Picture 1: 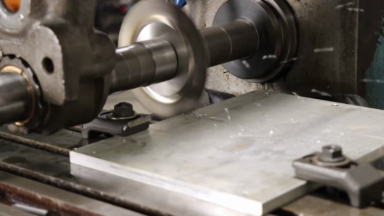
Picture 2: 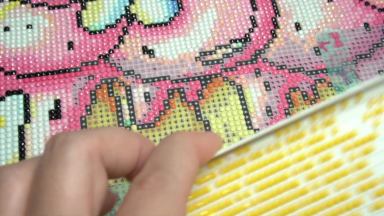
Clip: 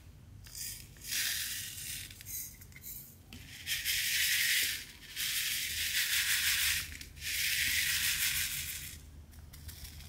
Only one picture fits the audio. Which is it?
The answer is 2